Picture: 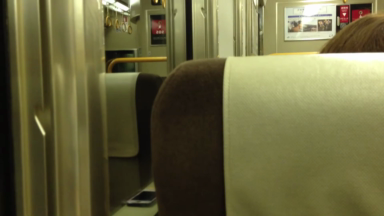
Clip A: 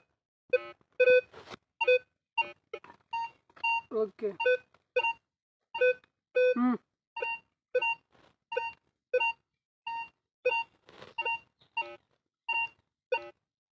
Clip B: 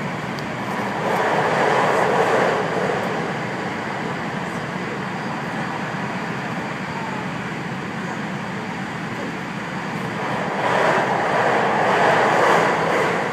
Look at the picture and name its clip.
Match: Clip B